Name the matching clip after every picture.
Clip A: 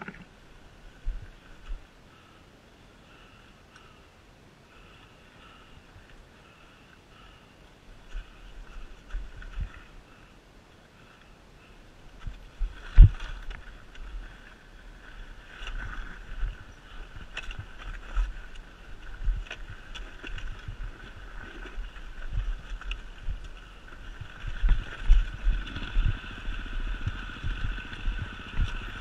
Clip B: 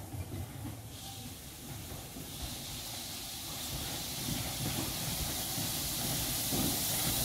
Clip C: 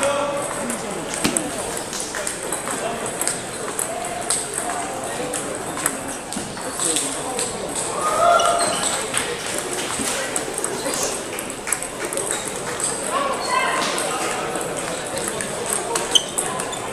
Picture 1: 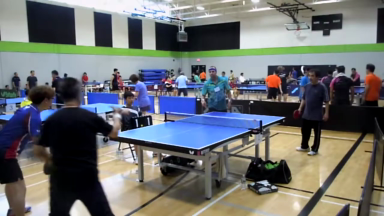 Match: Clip C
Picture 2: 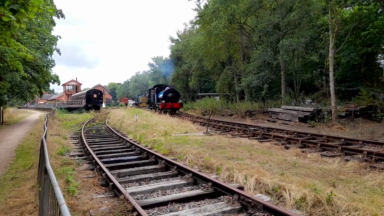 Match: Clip B